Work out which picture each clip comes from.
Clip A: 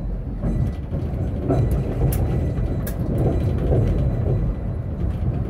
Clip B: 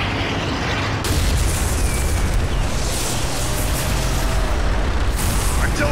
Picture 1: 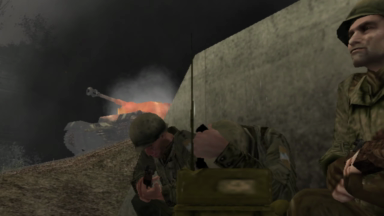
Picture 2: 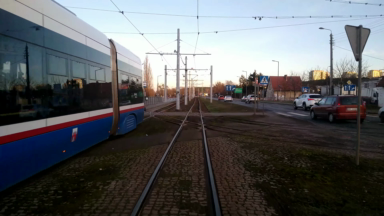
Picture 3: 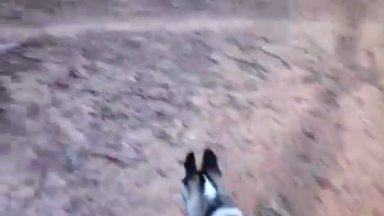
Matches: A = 2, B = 1